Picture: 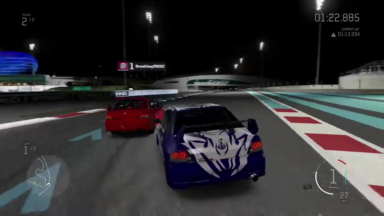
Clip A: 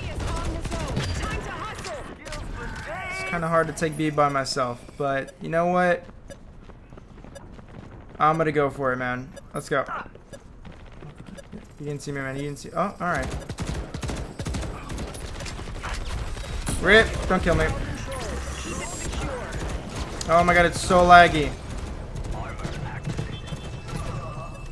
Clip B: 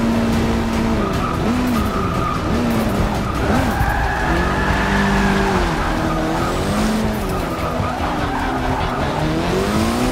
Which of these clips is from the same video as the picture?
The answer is B